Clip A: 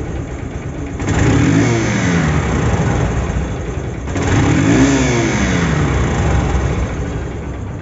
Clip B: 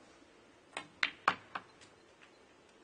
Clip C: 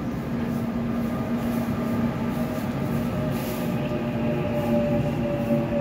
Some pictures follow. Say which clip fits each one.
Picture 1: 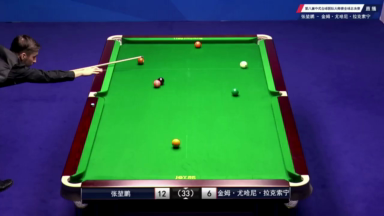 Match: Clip B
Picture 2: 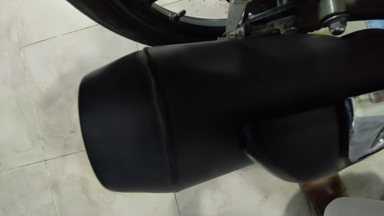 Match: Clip A